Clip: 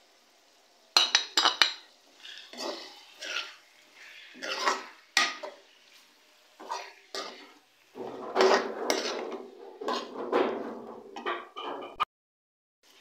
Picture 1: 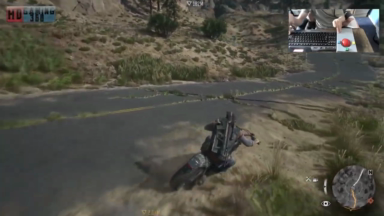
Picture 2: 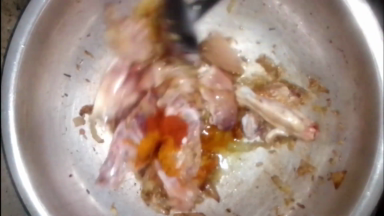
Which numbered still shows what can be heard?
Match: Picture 2